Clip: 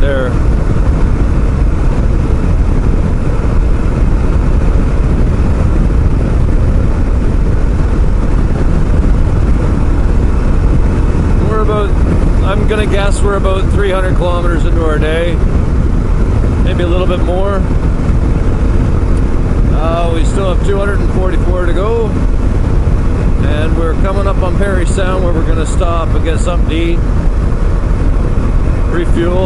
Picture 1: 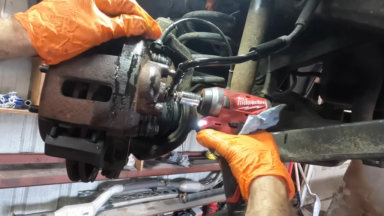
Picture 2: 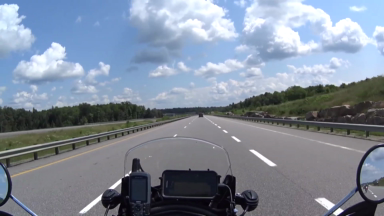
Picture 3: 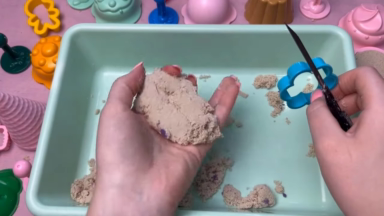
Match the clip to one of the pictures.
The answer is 2